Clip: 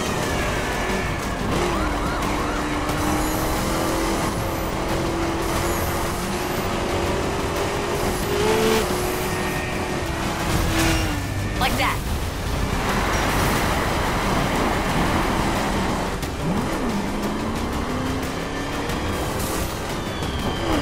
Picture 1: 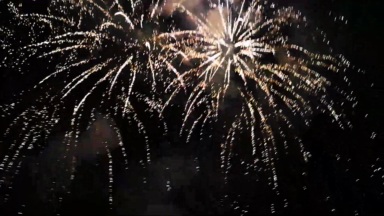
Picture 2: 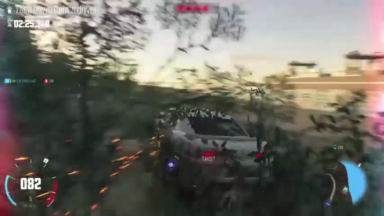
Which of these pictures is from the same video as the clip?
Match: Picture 2